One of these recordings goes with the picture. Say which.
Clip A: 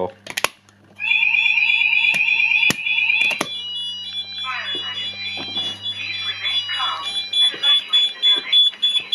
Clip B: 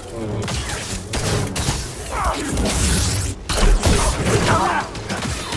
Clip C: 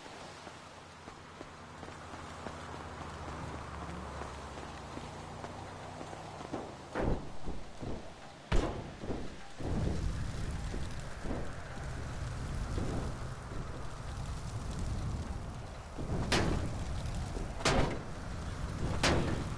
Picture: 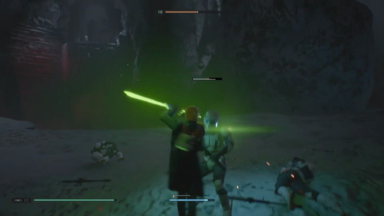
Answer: B